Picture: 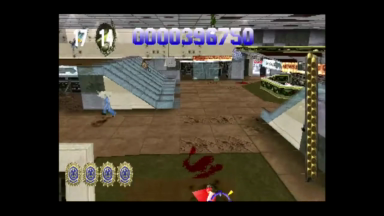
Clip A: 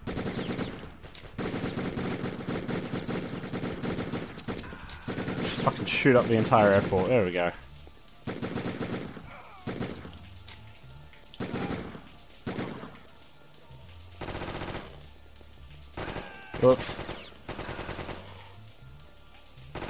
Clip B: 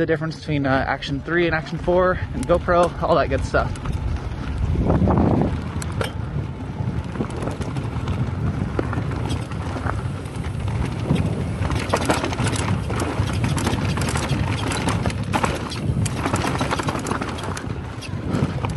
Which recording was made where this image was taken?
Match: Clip A